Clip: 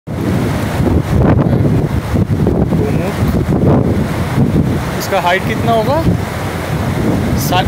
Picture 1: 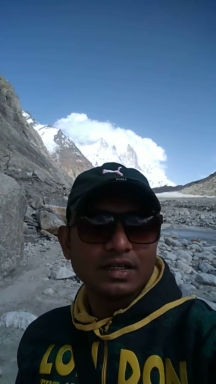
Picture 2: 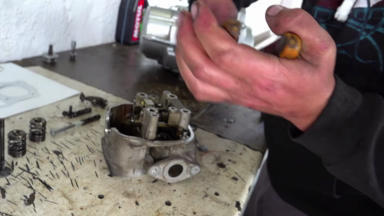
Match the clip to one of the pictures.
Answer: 1